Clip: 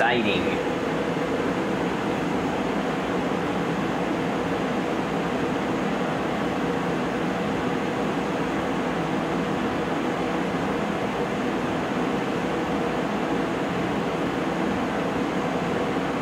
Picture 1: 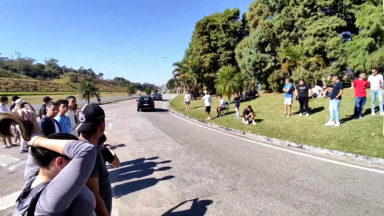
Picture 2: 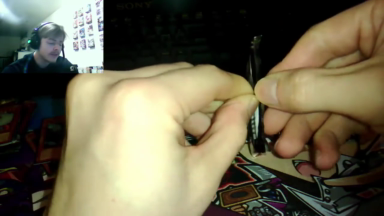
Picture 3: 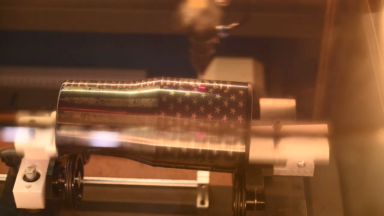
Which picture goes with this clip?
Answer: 3